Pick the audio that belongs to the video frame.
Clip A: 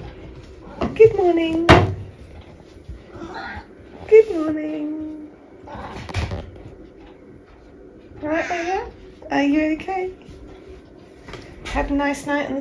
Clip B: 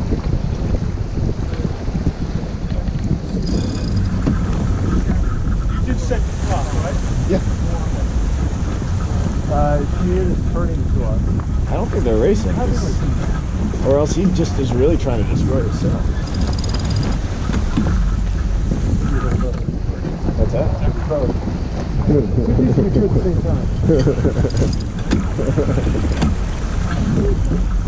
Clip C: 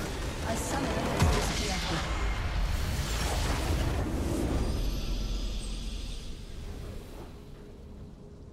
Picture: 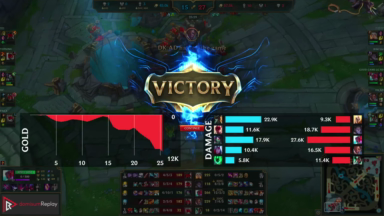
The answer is C